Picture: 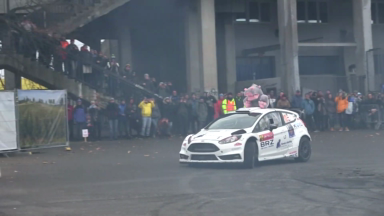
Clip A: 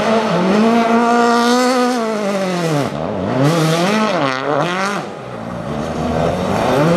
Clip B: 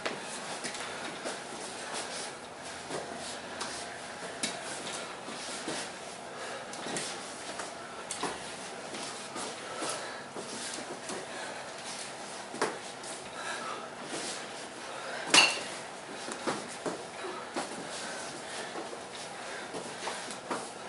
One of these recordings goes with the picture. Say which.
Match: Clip A